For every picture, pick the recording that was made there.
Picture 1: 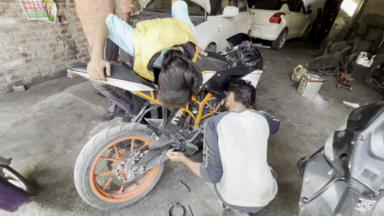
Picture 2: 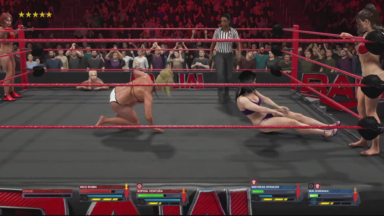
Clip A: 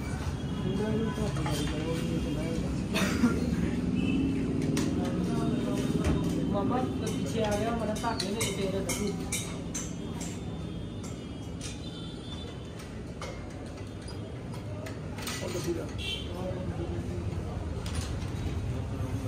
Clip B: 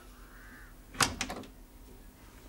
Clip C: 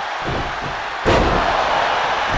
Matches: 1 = A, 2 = C